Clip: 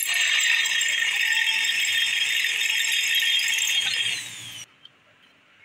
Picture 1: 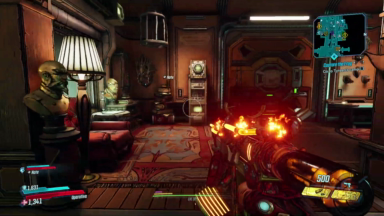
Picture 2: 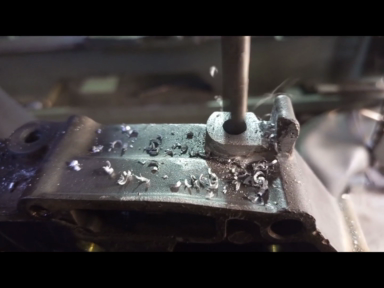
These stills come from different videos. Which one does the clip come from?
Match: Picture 2